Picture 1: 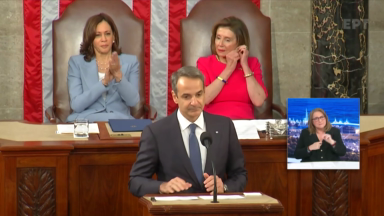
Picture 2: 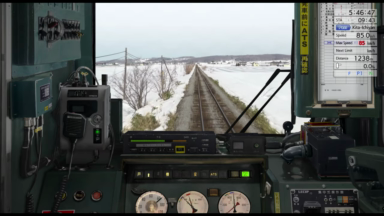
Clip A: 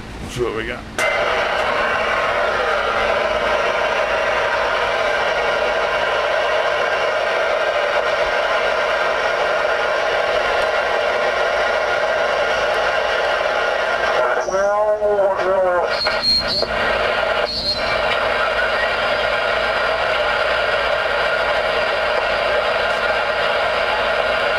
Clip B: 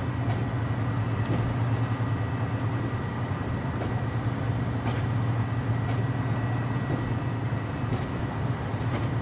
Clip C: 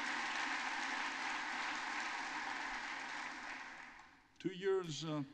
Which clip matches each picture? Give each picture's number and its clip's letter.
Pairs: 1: C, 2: B